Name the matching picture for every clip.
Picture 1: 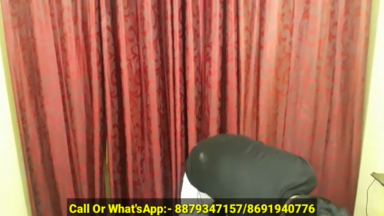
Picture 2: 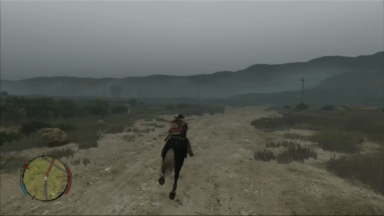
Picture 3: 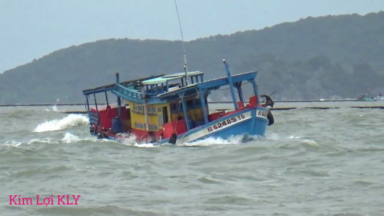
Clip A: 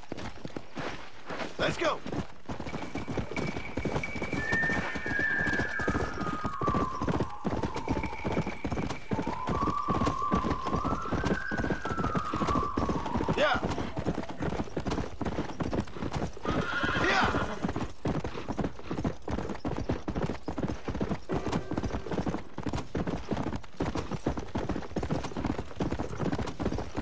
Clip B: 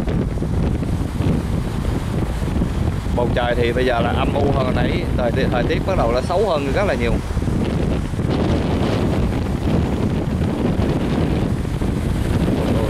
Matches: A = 2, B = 3